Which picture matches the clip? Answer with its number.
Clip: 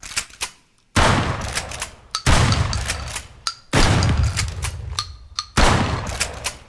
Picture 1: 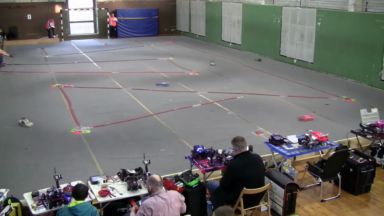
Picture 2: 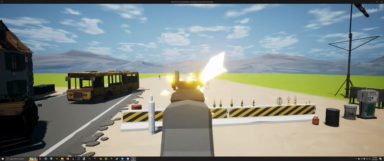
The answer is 2